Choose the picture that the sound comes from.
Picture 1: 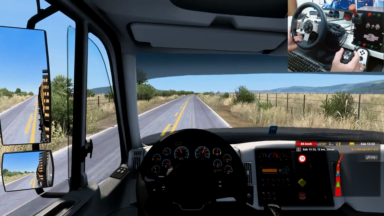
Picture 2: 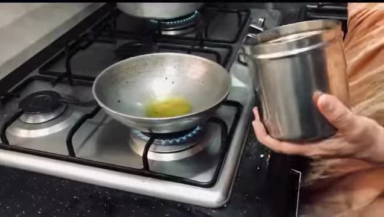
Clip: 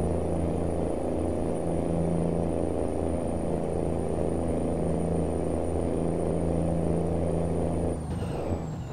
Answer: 1